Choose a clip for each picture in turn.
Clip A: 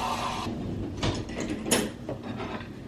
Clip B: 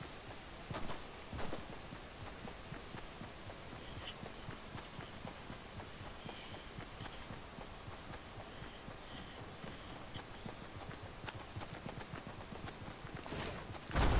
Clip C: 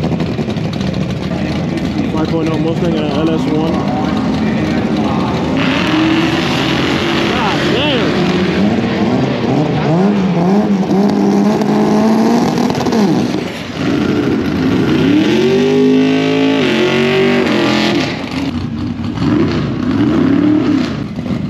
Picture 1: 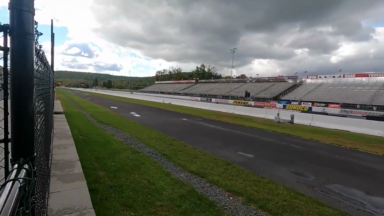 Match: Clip C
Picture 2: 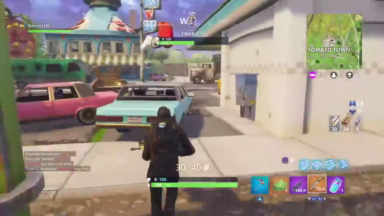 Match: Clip B